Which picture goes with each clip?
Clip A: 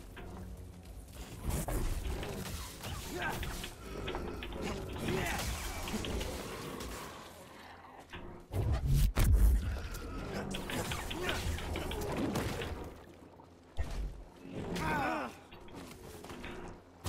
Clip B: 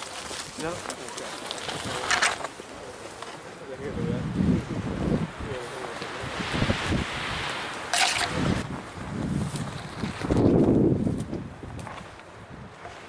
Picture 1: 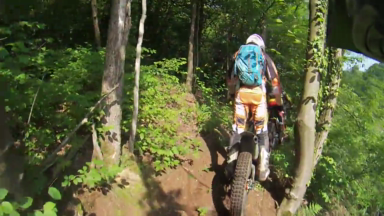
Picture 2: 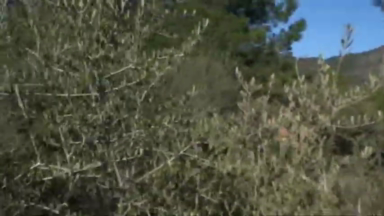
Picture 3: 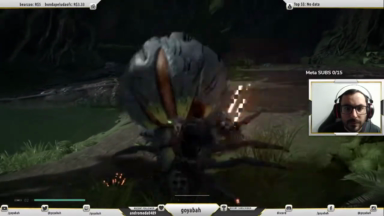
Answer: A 3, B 2